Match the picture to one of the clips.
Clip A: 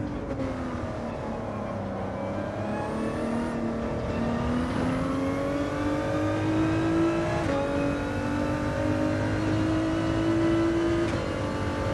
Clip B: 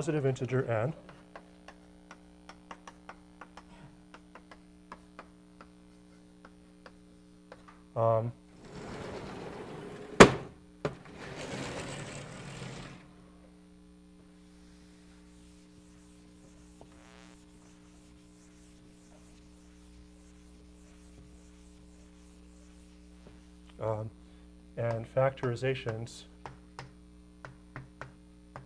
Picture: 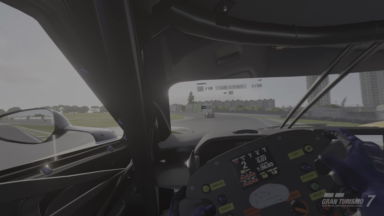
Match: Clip A